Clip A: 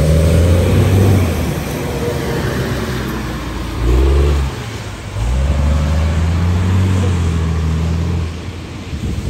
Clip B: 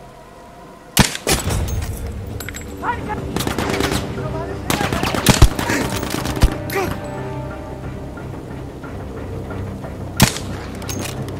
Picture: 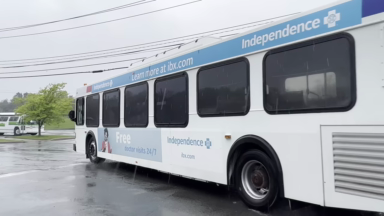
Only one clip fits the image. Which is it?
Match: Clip A